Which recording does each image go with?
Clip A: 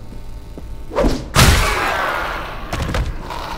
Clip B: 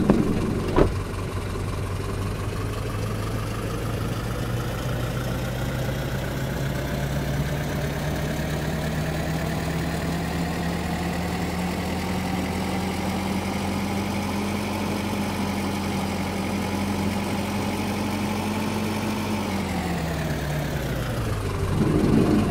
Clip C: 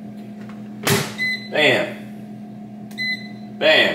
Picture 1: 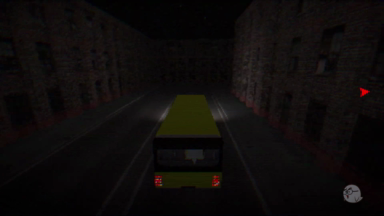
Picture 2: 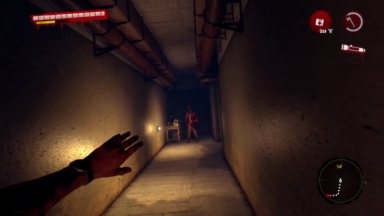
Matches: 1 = B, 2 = A